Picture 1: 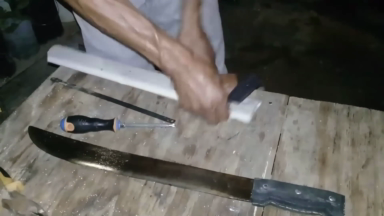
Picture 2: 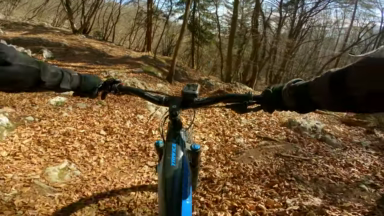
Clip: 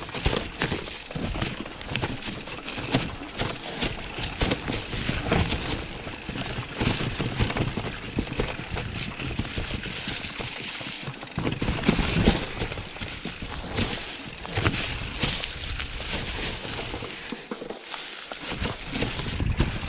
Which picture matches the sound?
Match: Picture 2